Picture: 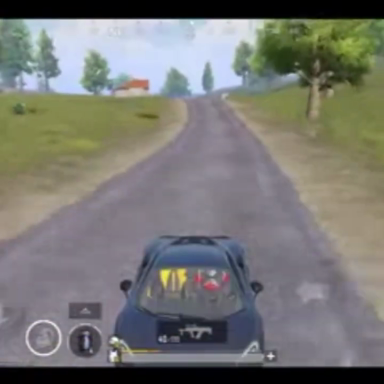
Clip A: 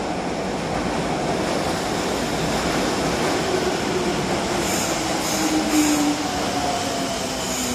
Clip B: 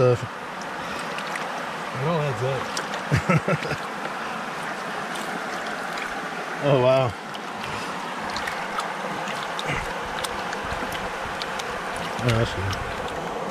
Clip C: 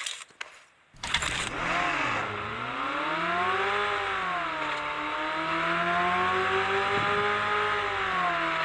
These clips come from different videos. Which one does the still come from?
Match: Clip C